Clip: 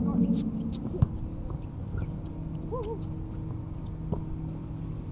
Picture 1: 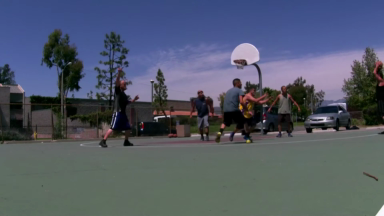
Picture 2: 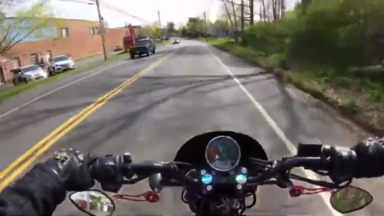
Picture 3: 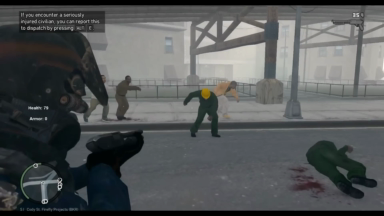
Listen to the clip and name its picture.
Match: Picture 1